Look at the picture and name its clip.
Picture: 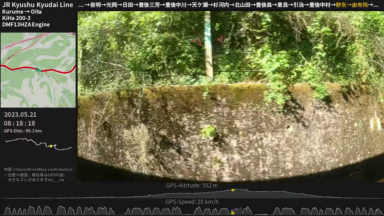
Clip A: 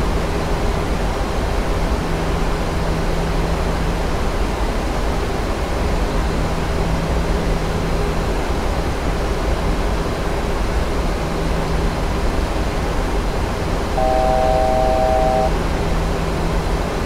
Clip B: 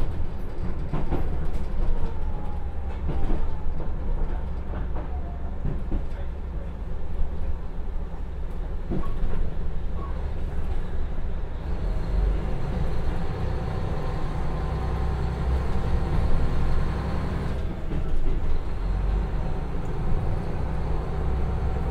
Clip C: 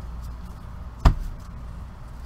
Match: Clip B